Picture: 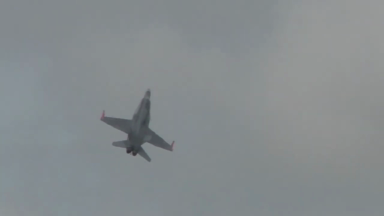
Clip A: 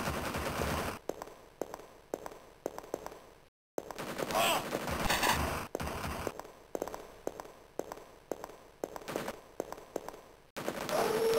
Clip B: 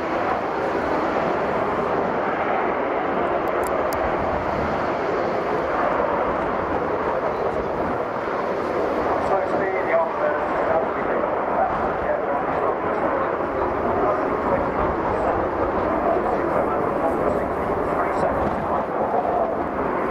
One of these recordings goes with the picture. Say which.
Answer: B